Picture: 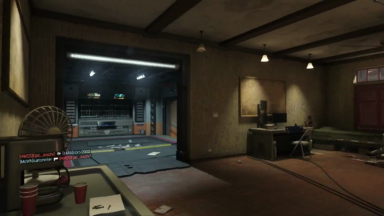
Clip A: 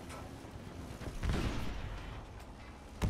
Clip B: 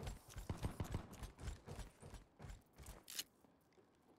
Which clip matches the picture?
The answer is B